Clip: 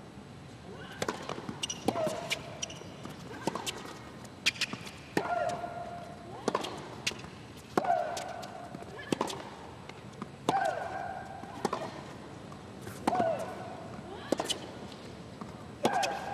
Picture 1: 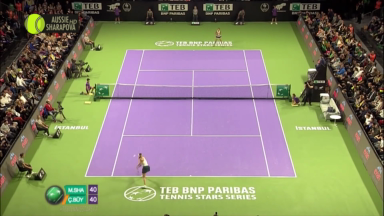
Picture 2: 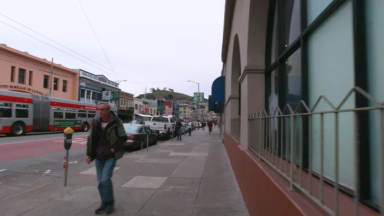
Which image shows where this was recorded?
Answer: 1